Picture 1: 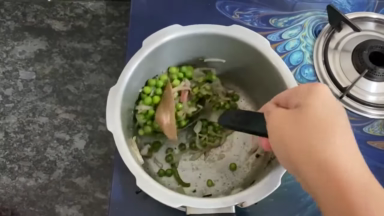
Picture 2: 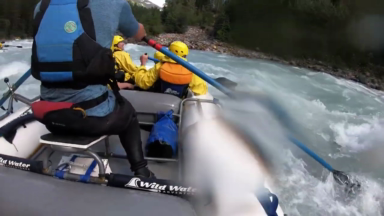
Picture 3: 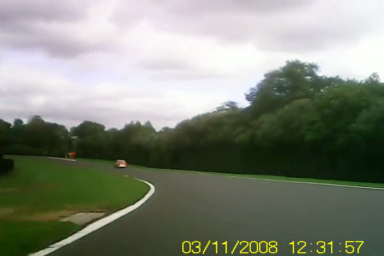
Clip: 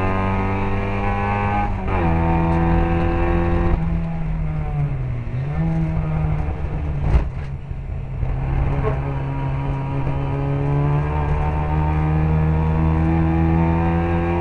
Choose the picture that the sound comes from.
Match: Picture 3